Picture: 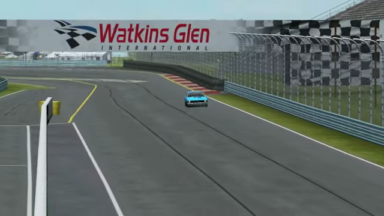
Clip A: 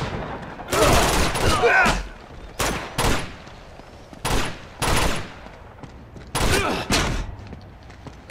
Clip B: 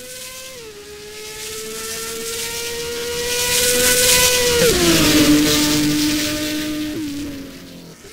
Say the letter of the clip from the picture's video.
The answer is B